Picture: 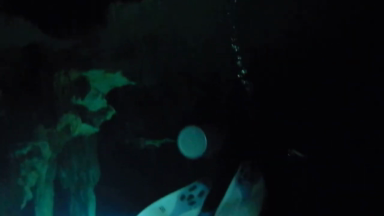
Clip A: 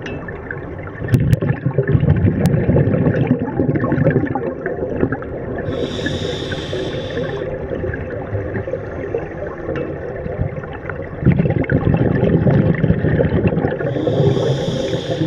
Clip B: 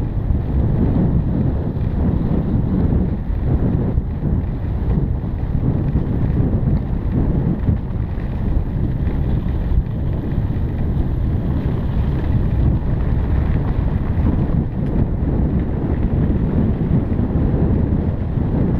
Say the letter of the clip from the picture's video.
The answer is A